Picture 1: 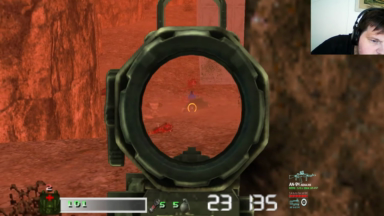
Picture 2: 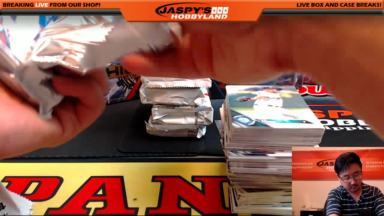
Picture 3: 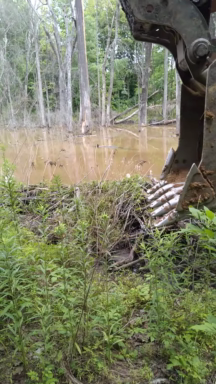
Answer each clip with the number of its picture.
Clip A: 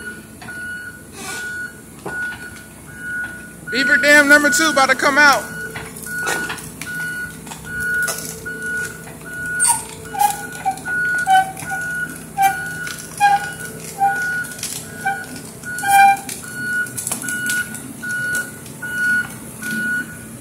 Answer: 3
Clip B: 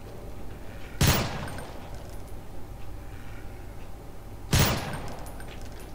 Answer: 1